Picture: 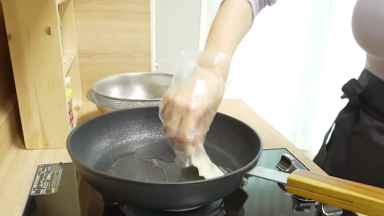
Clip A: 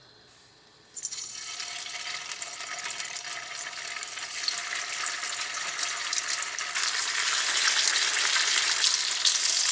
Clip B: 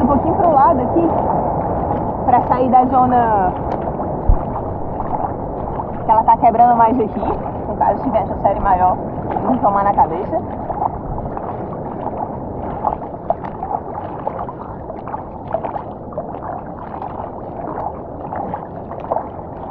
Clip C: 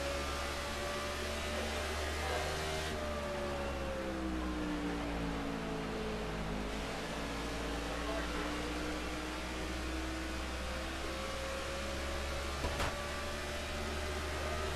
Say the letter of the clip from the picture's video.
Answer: A